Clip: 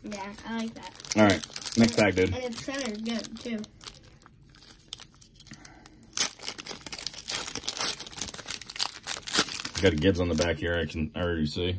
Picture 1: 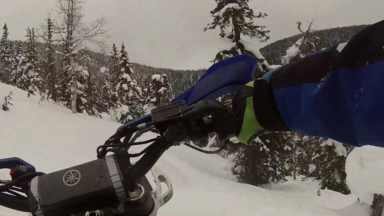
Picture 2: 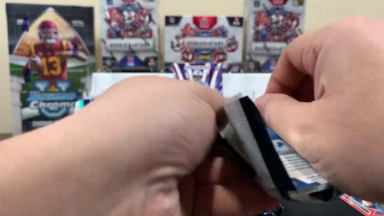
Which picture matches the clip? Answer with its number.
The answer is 2